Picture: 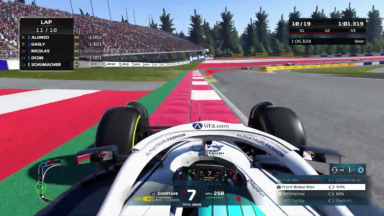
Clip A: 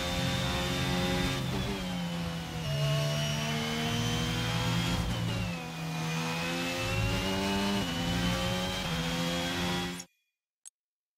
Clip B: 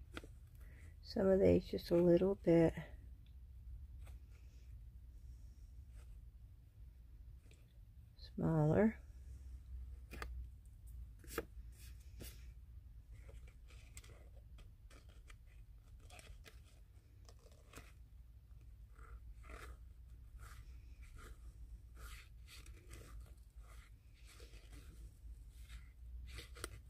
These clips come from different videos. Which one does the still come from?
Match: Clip A